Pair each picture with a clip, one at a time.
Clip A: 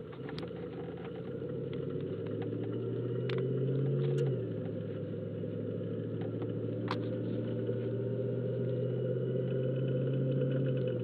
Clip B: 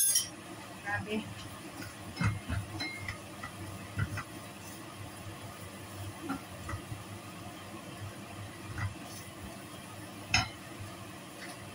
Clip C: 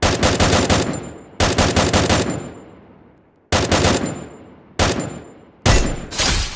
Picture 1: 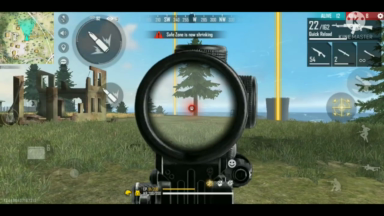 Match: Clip C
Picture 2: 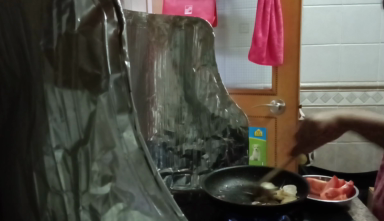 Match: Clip B